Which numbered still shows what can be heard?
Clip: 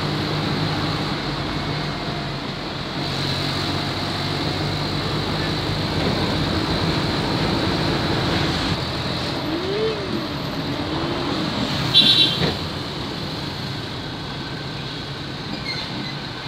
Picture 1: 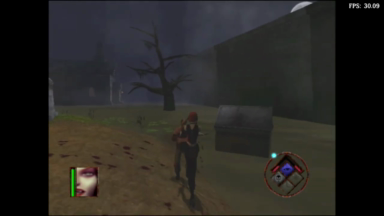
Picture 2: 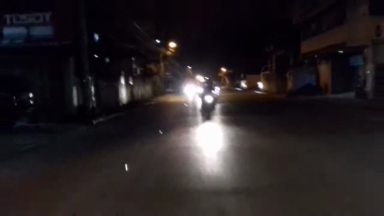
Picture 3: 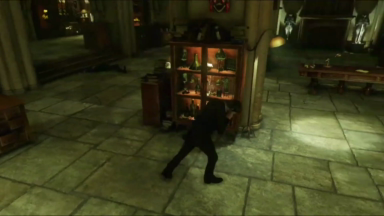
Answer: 2